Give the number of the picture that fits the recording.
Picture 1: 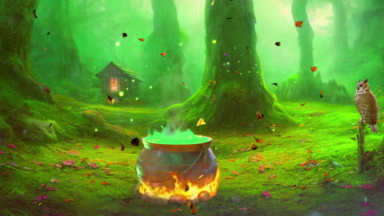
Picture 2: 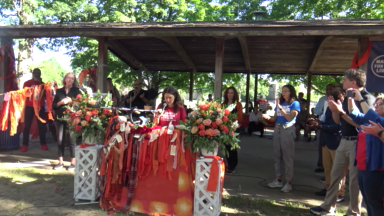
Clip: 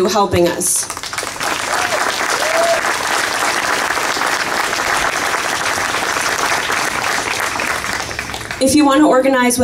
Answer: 2